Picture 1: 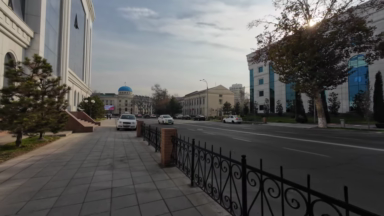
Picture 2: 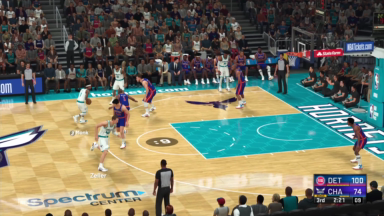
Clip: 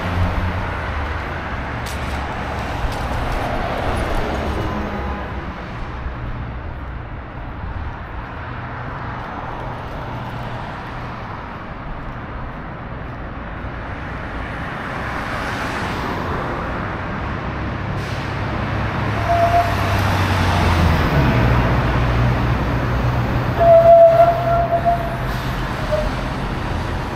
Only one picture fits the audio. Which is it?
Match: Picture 1